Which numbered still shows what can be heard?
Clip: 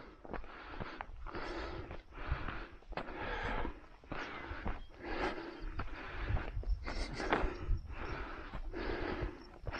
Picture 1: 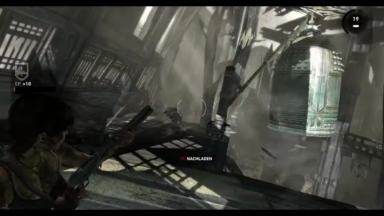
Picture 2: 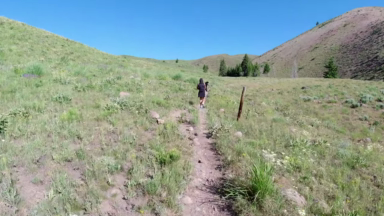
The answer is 2